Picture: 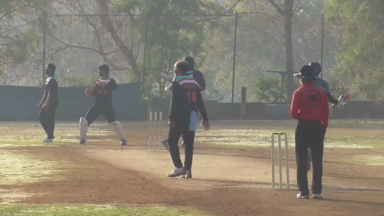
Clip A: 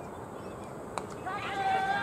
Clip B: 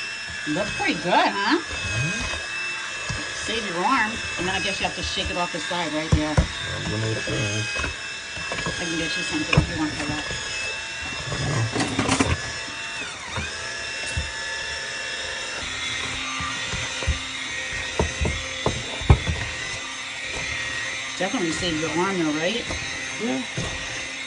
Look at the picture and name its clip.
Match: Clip A